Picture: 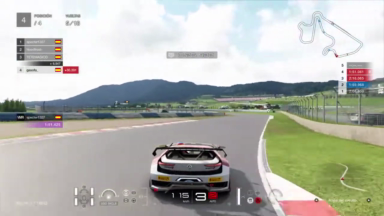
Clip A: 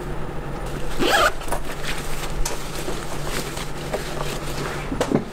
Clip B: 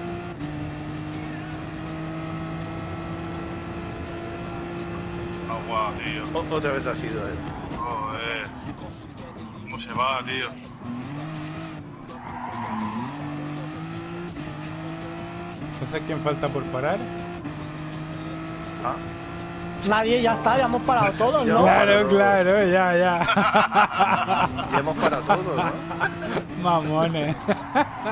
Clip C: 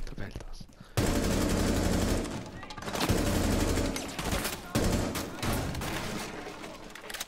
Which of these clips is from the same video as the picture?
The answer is B